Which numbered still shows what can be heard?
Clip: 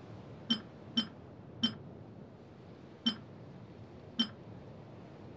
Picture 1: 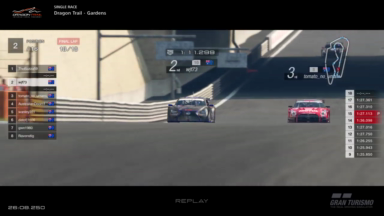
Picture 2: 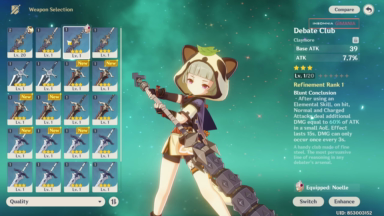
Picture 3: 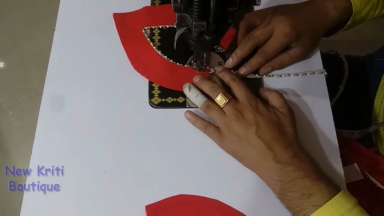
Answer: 2